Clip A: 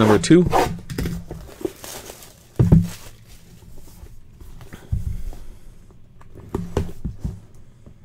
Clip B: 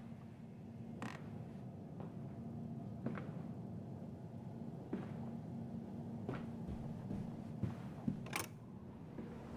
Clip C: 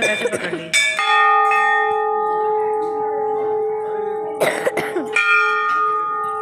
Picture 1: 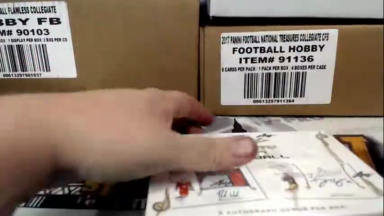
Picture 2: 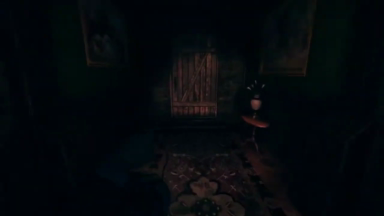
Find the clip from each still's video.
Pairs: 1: A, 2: B